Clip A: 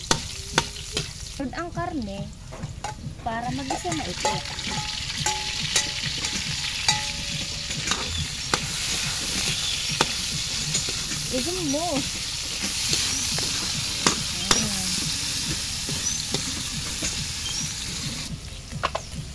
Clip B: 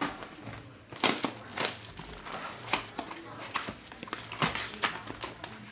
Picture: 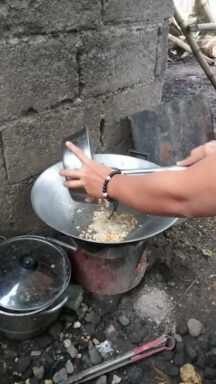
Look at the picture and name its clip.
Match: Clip A